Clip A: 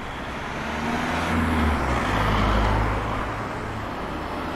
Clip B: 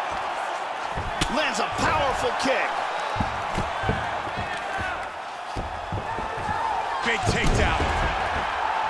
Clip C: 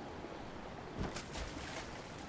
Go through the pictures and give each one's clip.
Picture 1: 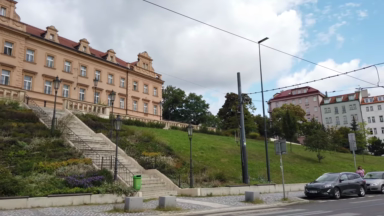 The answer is A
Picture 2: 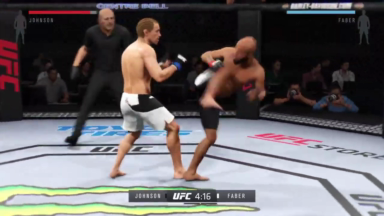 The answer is B